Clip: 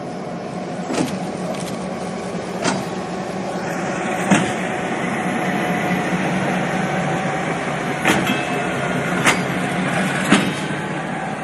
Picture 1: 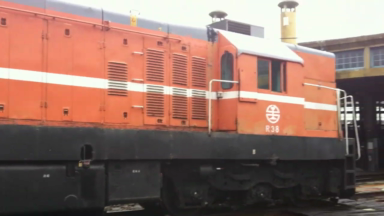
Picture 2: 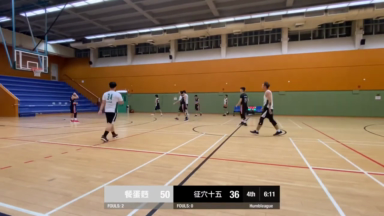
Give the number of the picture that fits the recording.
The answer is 1